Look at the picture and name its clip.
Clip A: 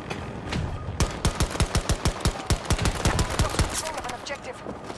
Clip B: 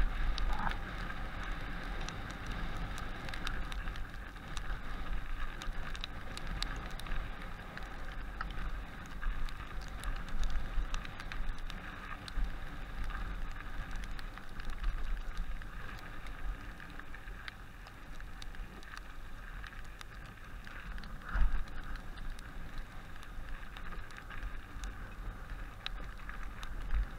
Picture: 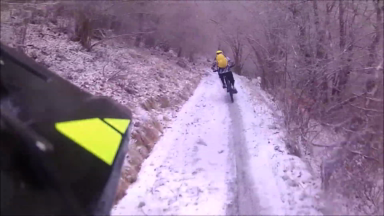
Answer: B